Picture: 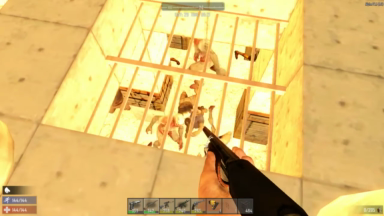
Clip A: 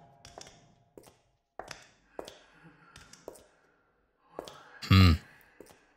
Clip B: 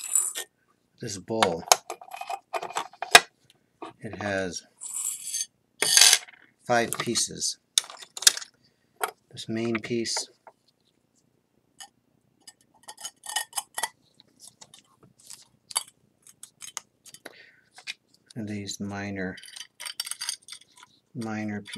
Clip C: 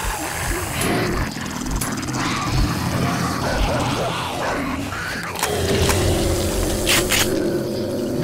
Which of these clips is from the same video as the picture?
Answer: C